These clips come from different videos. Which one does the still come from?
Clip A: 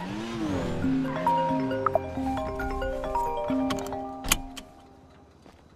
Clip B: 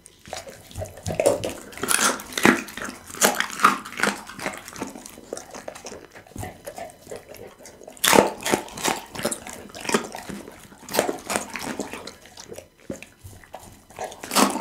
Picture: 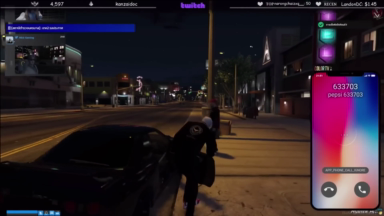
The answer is A